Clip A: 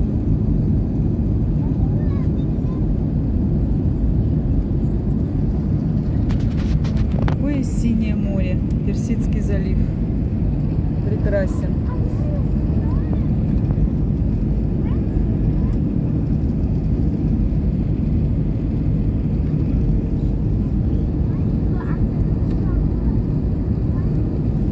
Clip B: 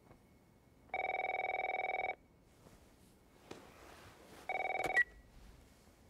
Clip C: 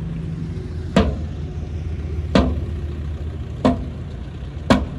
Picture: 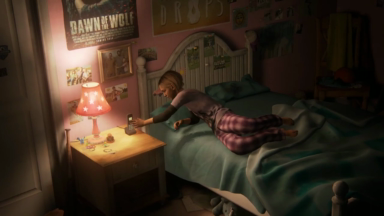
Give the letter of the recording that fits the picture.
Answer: B